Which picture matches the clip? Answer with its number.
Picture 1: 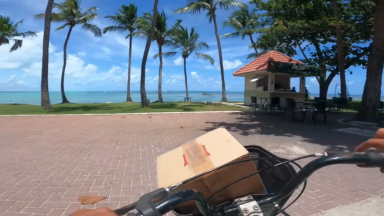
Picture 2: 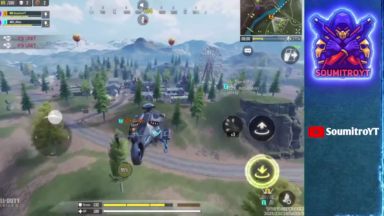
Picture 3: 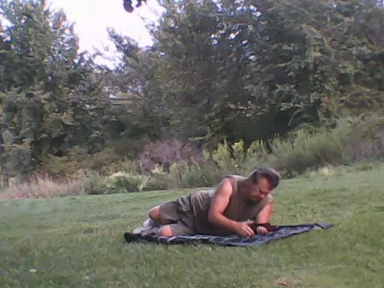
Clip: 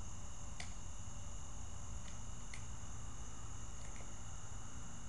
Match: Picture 3